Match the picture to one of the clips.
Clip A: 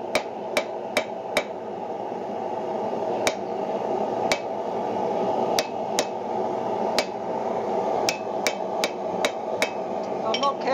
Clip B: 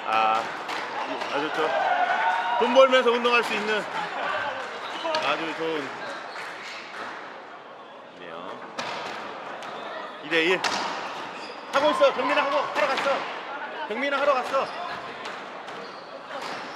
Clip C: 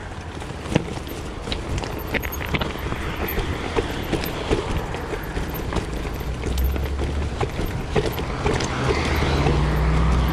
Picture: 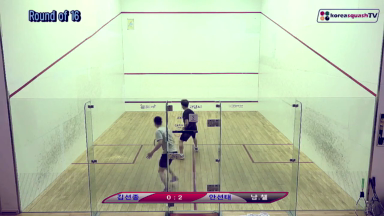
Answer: B